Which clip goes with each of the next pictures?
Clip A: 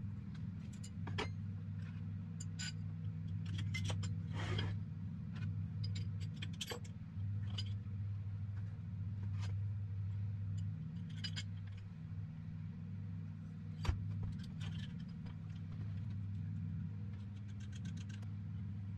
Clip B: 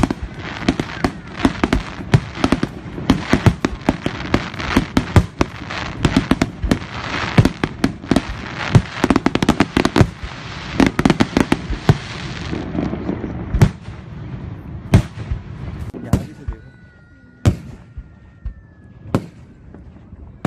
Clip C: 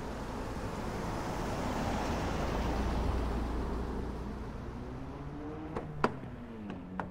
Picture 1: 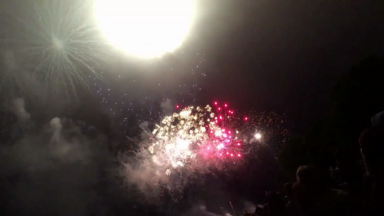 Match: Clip B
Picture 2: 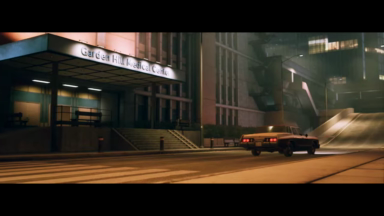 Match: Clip C